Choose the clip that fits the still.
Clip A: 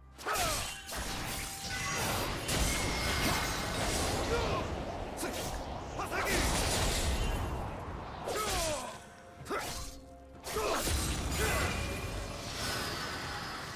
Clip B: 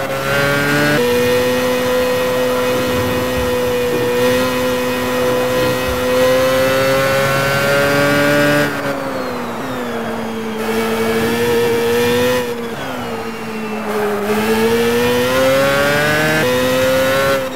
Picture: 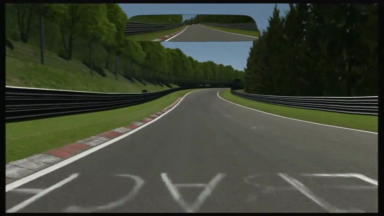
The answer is B